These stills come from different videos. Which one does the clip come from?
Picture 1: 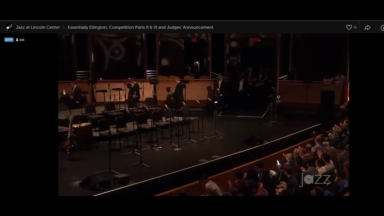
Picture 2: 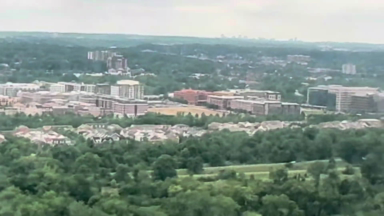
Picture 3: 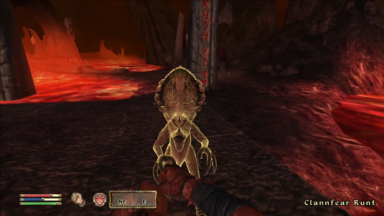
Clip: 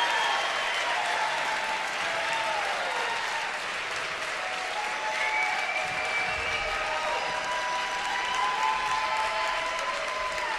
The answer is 1